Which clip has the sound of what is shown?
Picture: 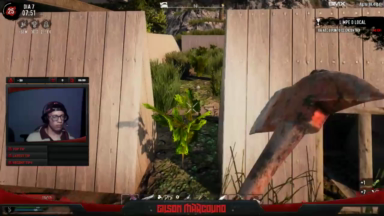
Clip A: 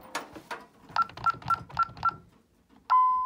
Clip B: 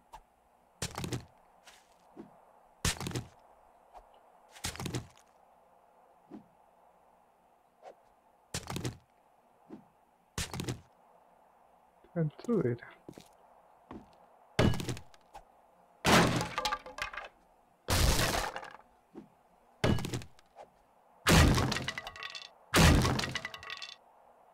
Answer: B